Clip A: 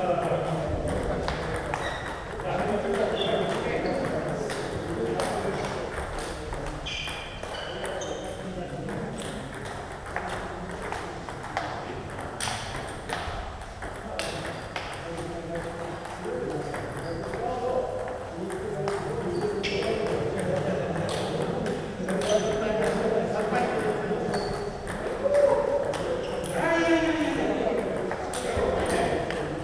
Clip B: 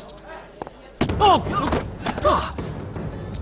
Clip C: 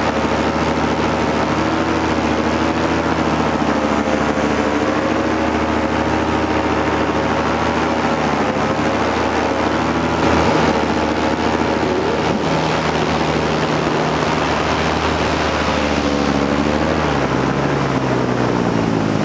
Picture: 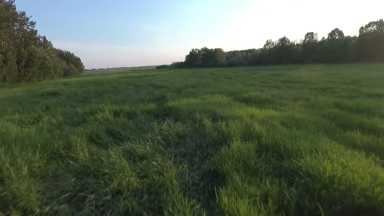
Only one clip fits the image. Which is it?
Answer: C